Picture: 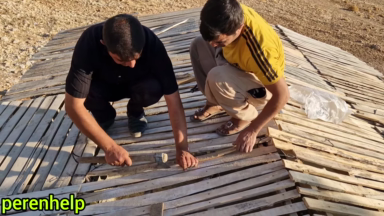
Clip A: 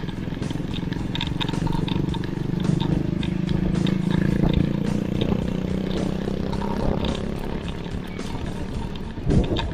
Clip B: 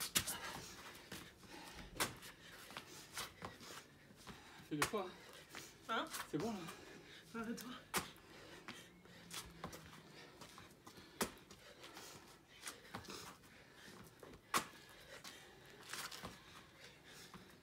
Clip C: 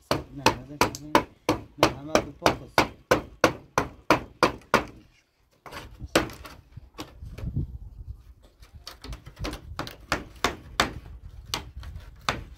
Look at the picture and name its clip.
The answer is C